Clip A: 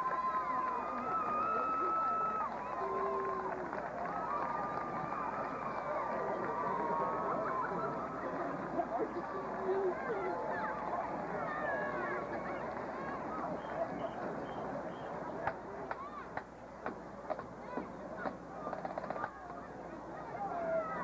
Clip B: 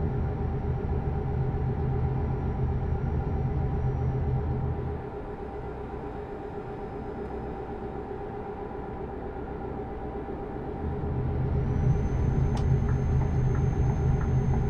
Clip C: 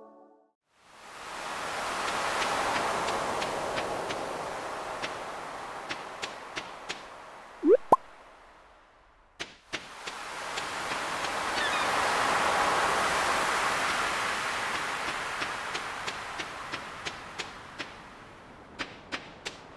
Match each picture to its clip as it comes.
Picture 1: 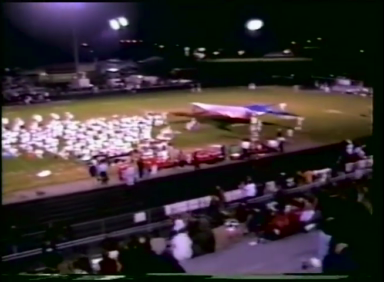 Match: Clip A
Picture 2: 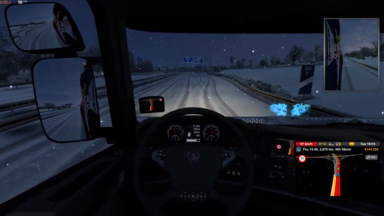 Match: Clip B